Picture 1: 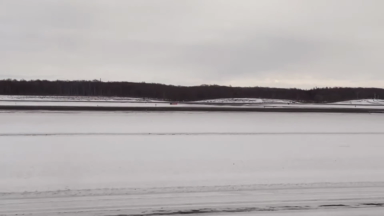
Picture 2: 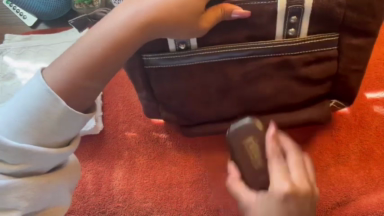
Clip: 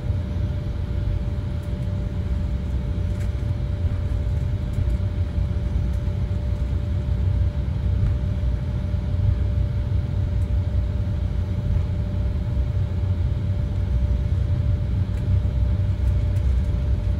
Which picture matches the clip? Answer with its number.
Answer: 1